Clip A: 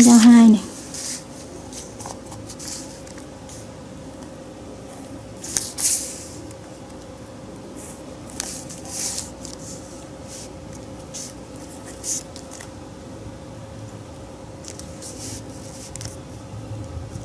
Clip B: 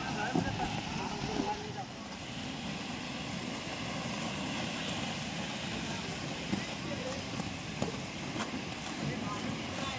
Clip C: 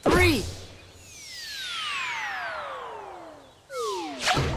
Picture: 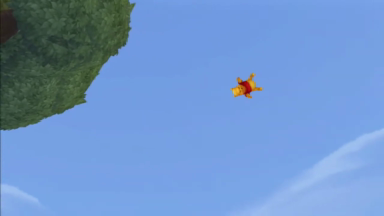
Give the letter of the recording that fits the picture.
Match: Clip C